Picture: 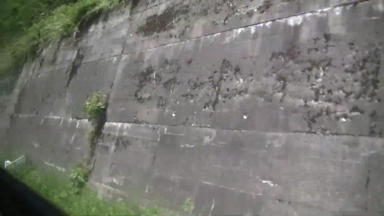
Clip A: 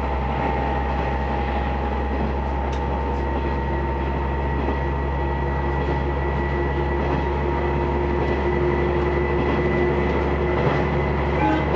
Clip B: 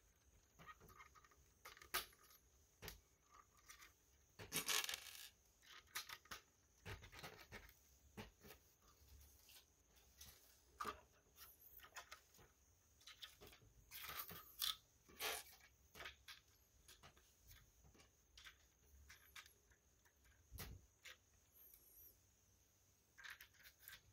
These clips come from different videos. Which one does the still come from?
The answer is A